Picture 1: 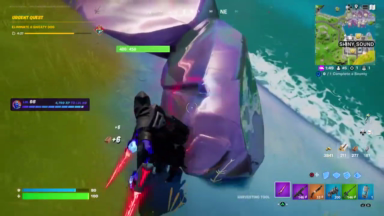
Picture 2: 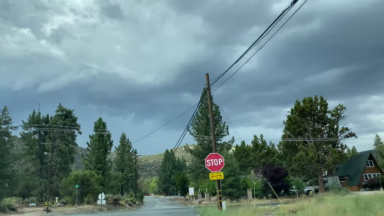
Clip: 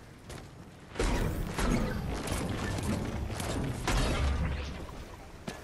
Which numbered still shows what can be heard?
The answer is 1